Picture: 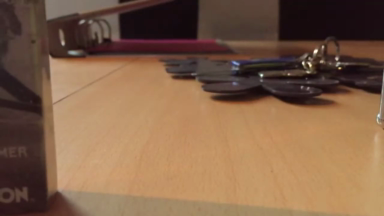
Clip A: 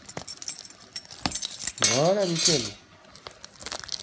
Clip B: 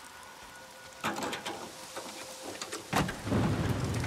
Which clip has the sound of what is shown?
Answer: A